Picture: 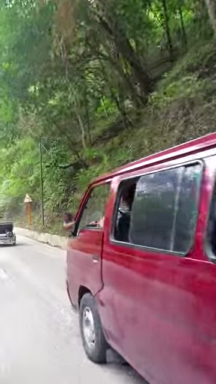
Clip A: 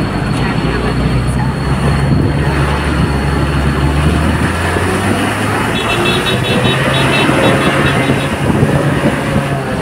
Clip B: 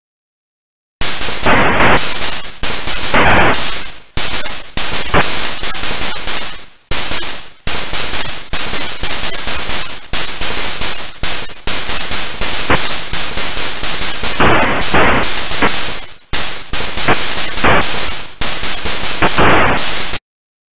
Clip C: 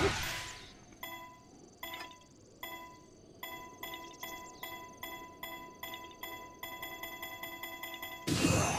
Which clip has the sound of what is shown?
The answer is A